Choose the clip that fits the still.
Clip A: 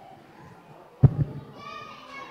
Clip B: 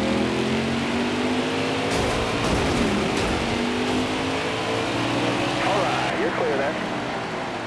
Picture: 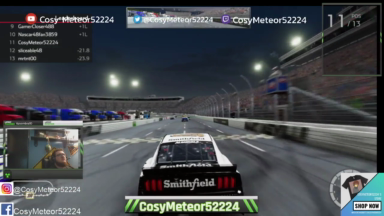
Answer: B